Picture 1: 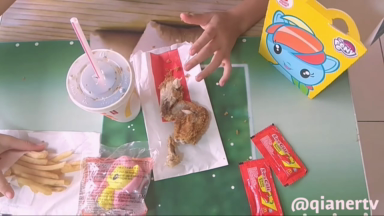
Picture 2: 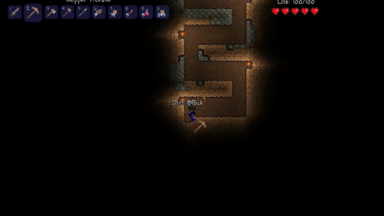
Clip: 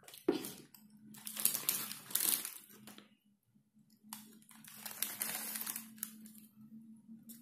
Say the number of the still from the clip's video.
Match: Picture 1